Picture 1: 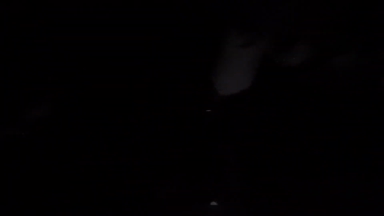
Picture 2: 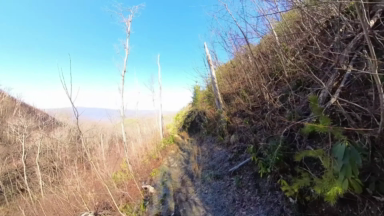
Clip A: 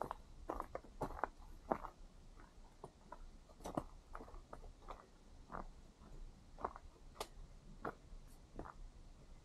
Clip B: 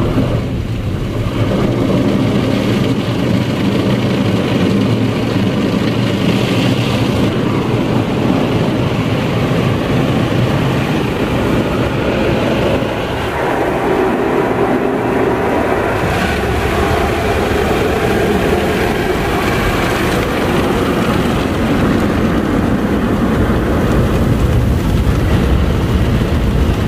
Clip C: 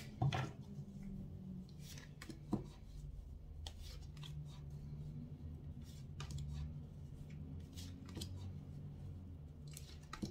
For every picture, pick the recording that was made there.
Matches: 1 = B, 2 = A